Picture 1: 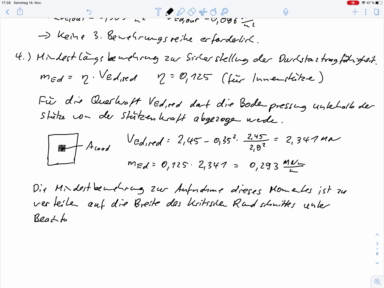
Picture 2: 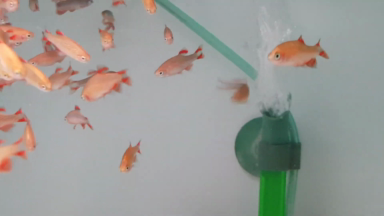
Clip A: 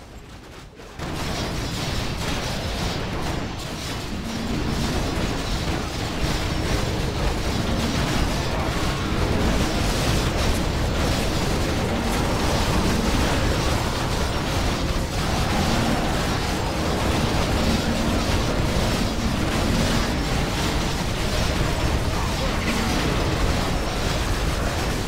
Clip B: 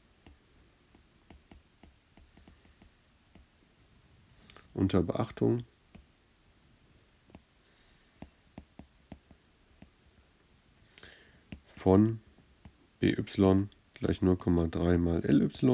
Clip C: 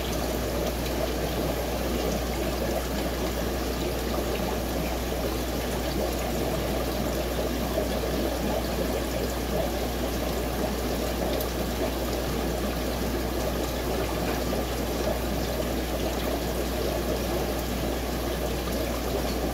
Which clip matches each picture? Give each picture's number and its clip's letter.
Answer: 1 B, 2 C